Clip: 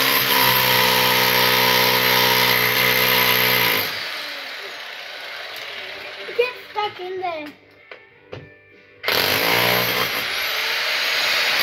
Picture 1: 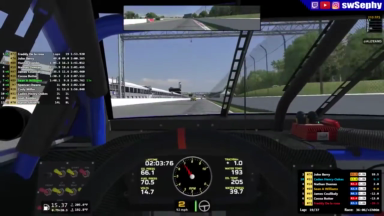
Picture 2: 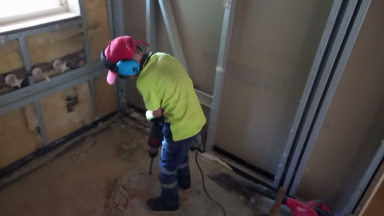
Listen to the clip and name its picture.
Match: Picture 2